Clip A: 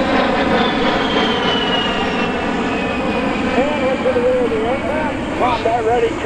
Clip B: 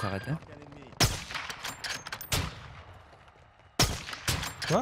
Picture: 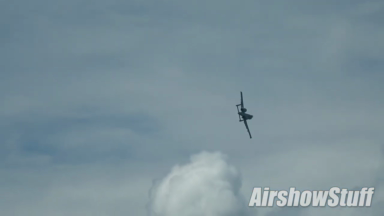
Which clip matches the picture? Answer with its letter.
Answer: A